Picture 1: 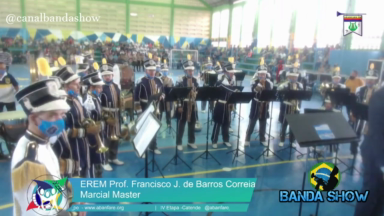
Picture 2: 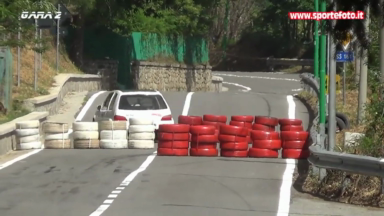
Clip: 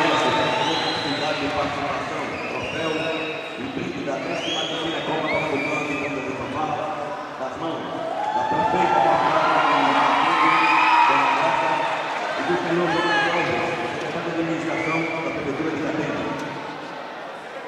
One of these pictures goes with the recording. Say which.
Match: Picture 1